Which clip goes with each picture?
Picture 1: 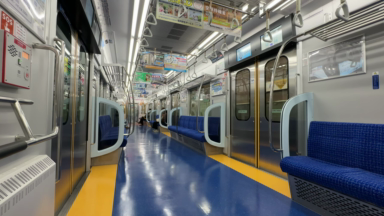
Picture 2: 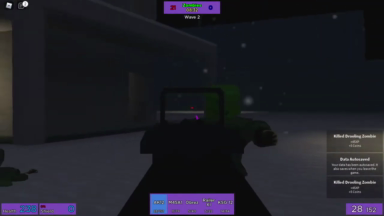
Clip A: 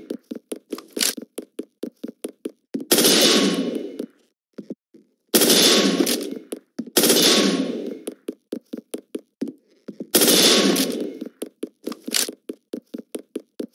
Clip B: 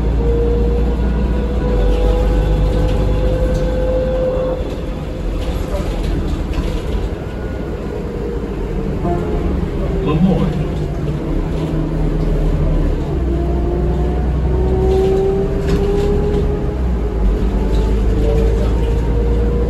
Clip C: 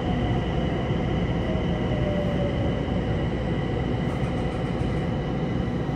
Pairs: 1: C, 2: A